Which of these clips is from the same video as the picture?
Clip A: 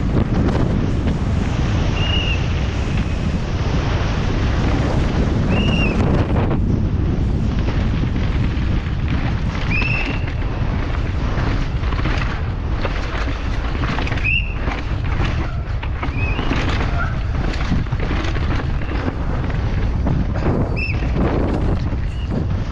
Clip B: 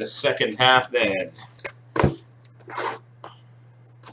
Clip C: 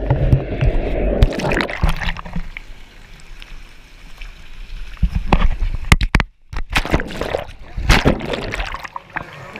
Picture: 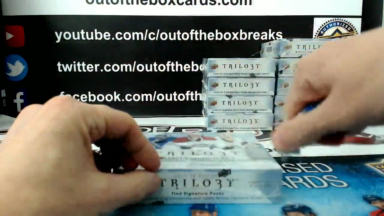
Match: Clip B